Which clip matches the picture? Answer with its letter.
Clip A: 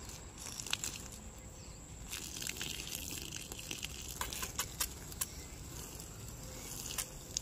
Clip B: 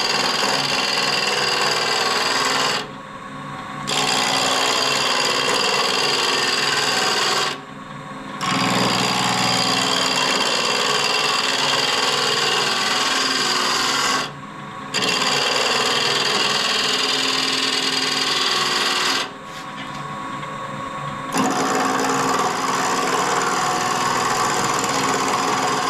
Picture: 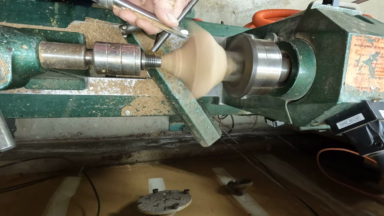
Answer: B